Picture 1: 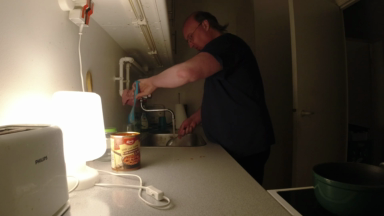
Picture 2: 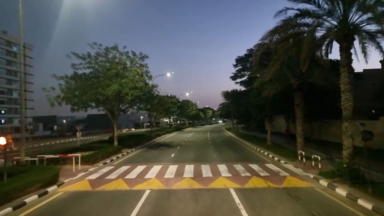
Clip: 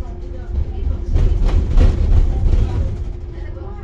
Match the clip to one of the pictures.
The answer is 2